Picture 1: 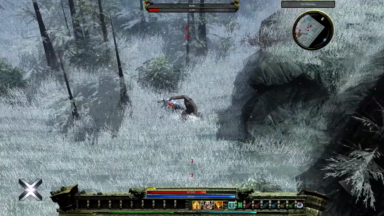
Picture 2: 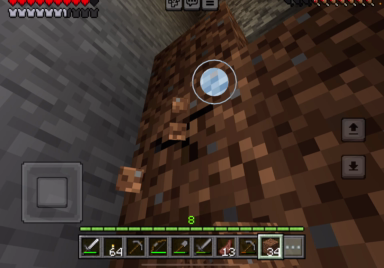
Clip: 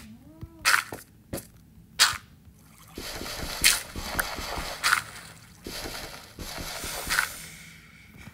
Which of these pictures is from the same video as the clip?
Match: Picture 2